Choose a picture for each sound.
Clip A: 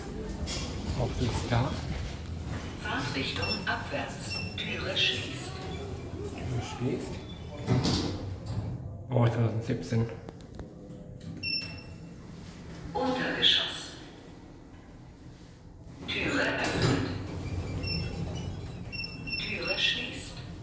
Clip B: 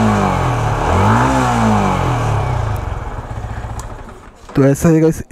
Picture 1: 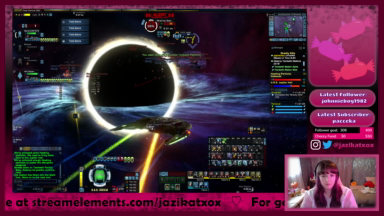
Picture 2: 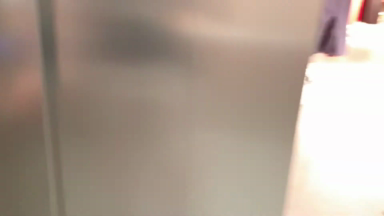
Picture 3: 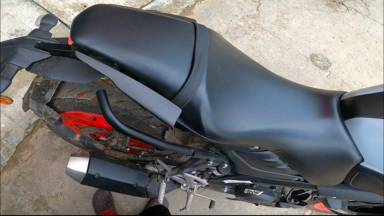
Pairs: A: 2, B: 3